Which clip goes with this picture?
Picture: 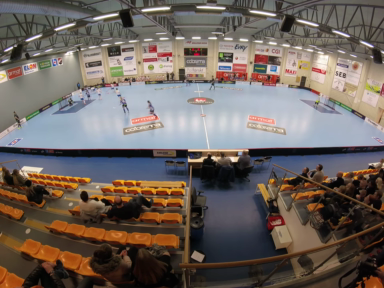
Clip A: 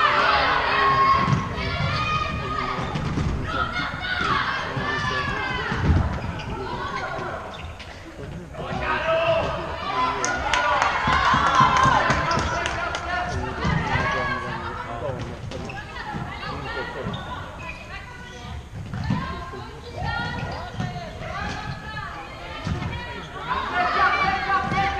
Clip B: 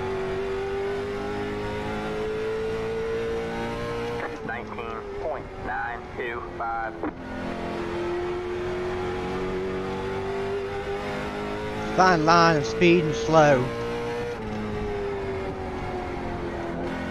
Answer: A